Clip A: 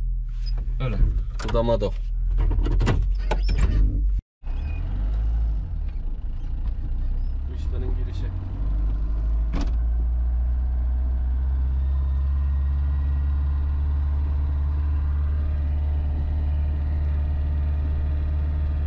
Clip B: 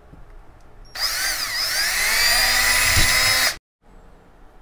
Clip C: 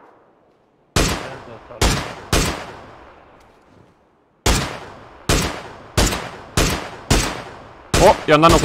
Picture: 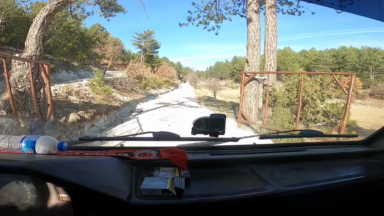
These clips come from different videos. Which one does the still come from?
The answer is A